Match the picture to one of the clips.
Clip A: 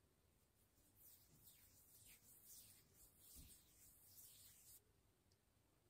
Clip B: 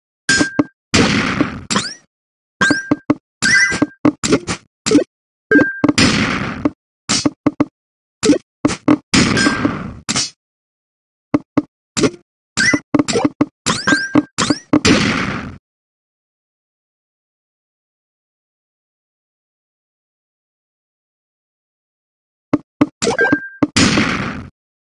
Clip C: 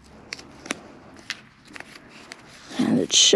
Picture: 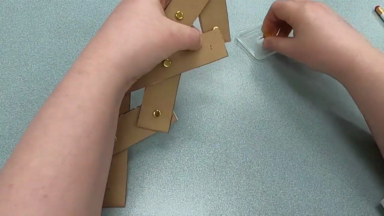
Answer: C